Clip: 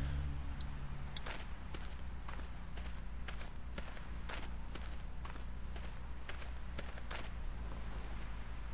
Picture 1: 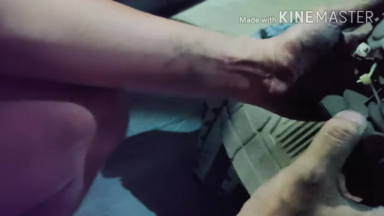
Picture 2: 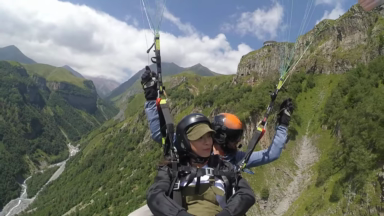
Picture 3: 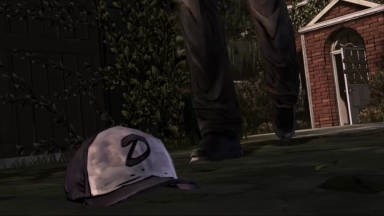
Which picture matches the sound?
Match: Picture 3